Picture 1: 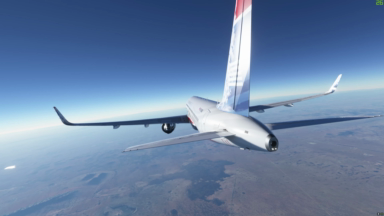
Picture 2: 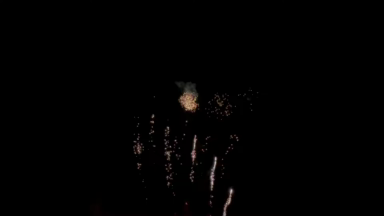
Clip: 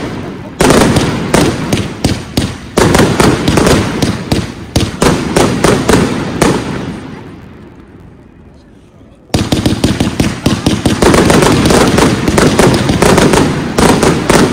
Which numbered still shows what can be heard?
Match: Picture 2